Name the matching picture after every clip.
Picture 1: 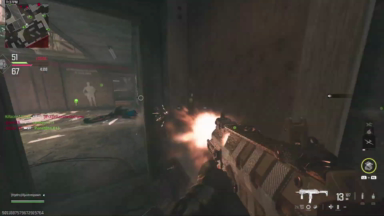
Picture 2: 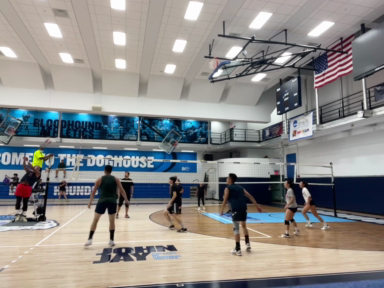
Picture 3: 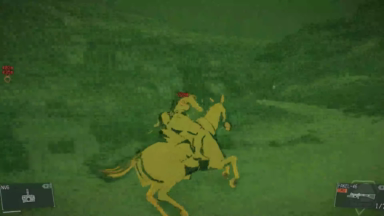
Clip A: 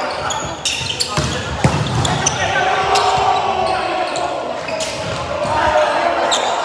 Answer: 2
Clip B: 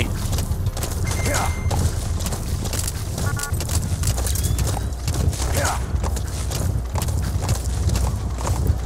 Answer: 3